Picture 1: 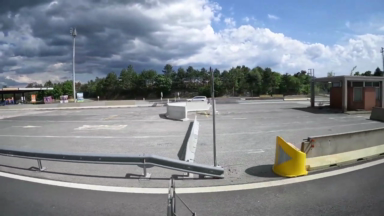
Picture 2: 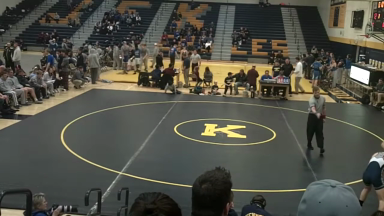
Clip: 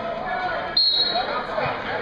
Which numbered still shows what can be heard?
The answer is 2